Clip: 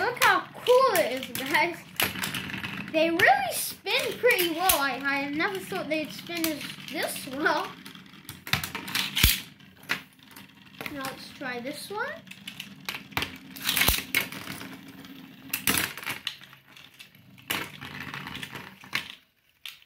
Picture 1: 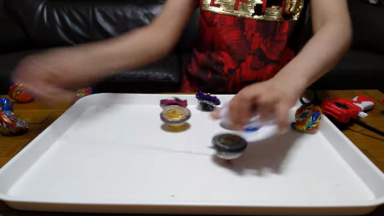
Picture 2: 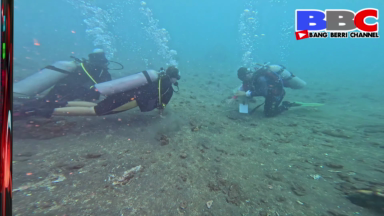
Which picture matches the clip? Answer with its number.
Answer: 1